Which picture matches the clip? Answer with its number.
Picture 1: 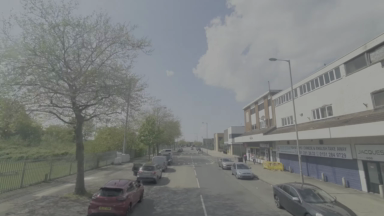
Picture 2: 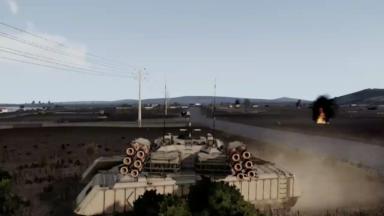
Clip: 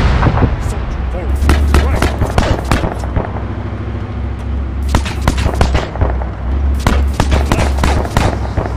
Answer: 2